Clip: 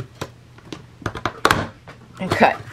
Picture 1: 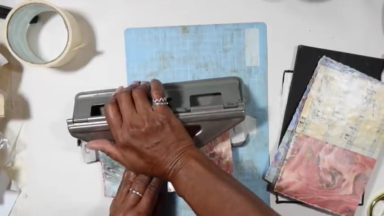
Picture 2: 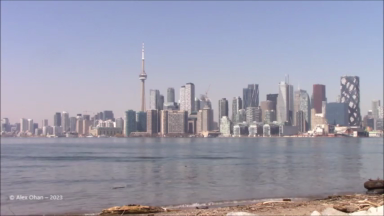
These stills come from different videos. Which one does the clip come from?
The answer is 1